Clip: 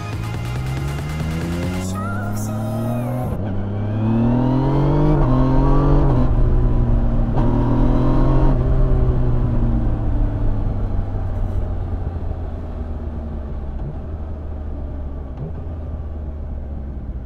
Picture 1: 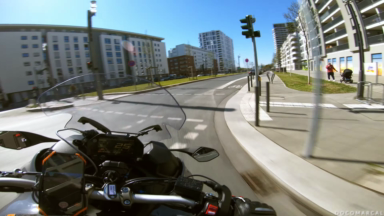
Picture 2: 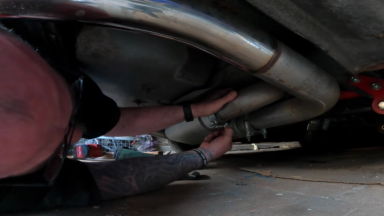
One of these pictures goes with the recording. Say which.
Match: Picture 1